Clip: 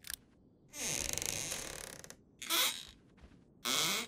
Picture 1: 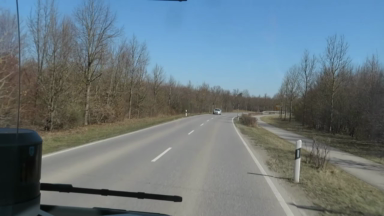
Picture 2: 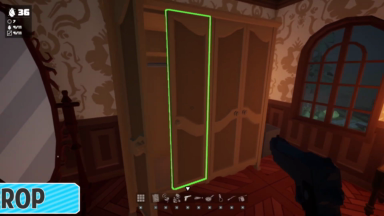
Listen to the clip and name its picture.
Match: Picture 2